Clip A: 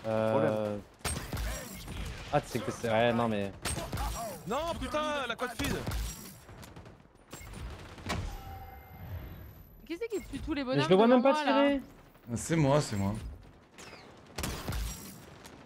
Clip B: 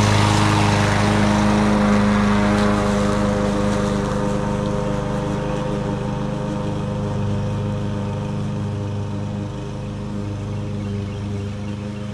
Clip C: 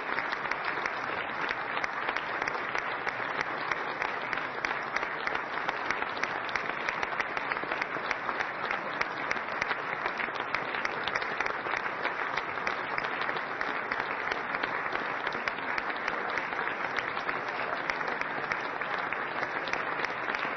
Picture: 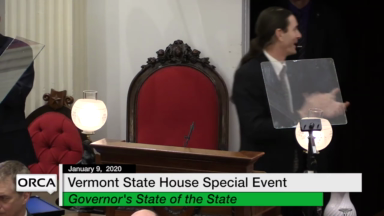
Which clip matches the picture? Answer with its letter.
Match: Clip C